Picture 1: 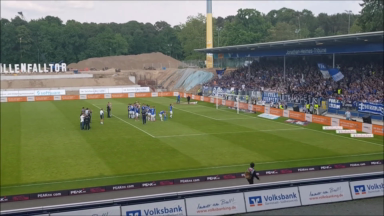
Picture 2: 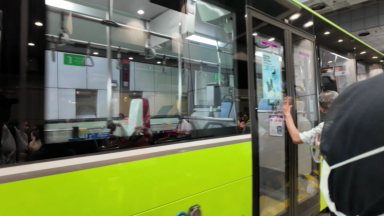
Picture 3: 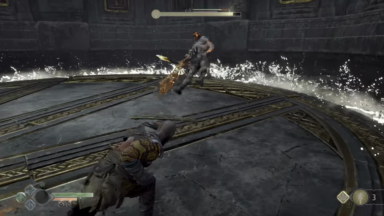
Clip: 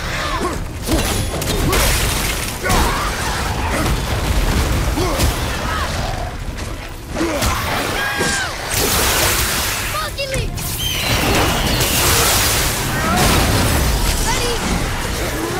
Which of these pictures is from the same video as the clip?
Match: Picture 3